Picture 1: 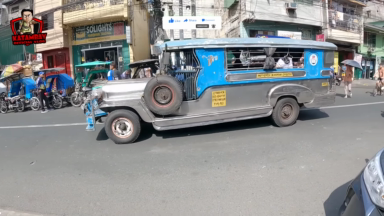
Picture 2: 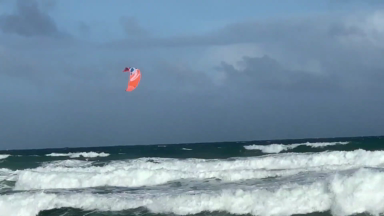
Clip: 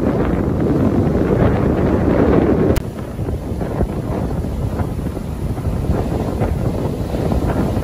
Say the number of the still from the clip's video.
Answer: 2